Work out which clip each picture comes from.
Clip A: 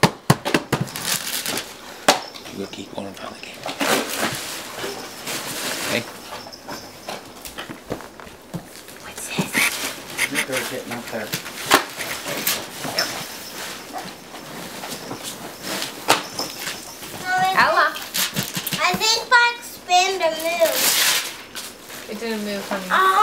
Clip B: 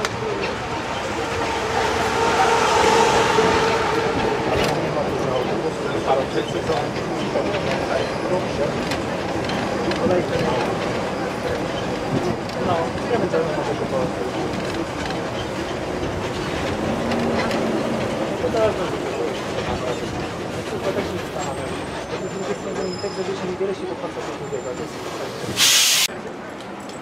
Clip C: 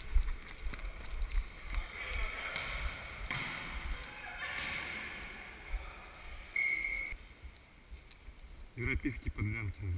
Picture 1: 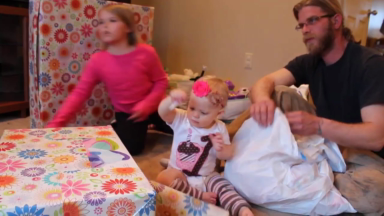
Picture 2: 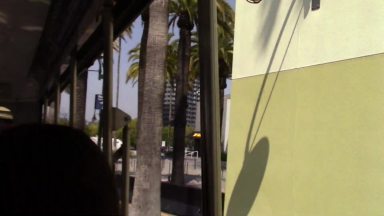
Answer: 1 A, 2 B